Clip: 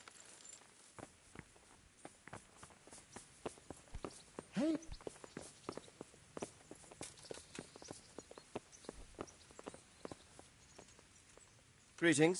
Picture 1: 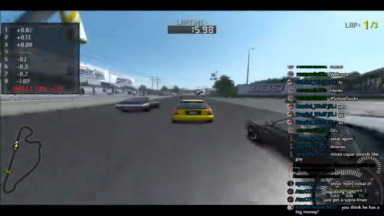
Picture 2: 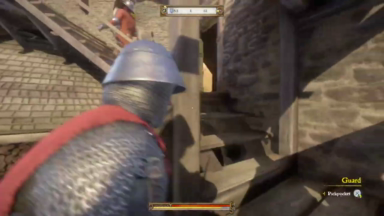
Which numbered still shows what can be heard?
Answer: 2